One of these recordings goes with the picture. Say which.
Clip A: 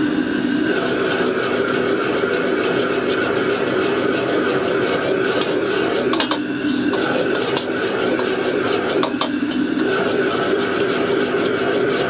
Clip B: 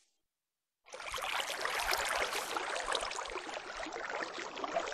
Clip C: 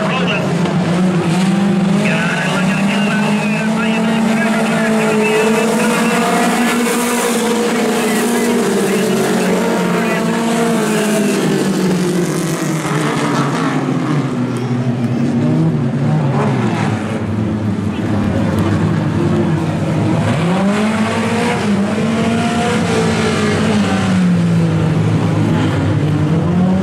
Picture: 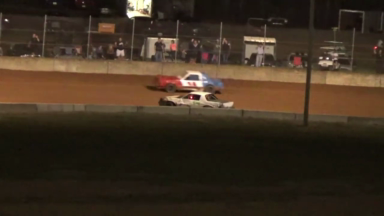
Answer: C